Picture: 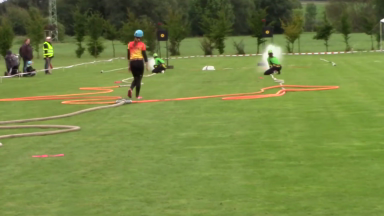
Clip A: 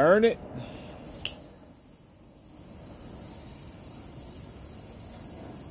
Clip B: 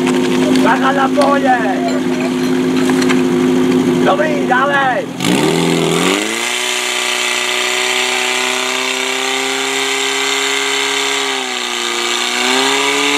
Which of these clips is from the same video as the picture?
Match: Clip B